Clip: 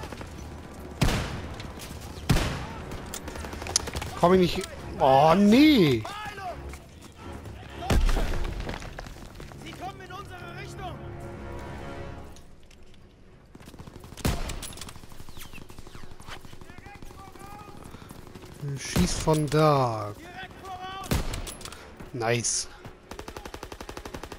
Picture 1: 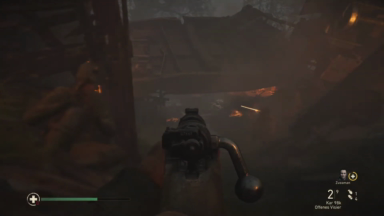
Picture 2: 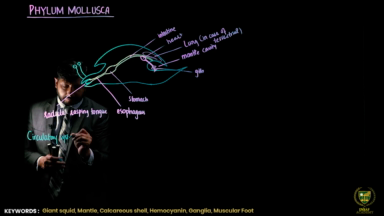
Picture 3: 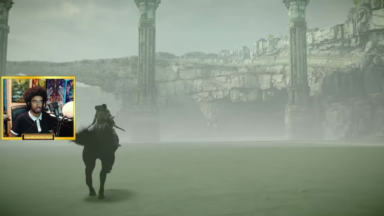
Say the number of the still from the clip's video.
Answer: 1